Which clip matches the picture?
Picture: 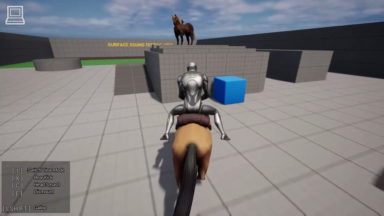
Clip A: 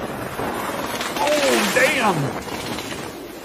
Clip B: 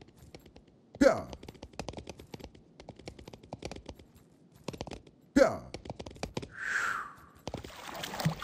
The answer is B